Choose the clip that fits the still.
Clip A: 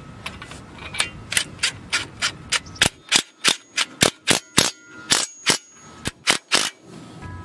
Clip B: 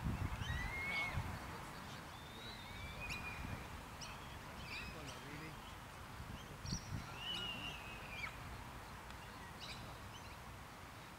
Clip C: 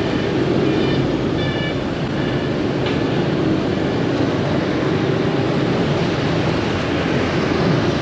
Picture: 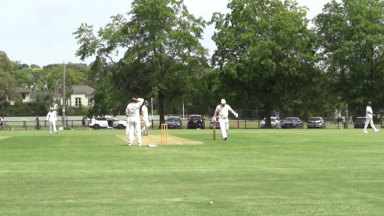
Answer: B